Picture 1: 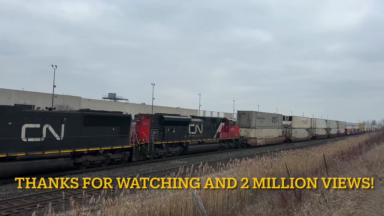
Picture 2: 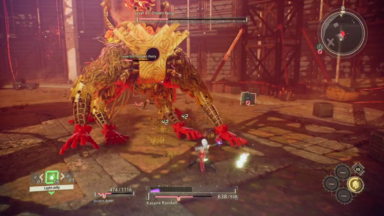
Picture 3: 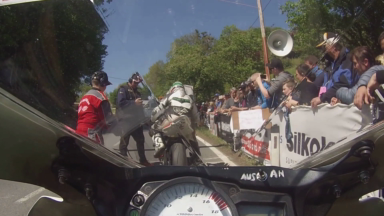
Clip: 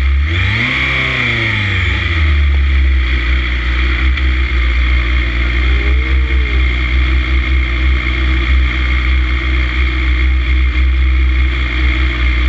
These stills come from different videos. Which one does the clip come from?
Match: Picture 3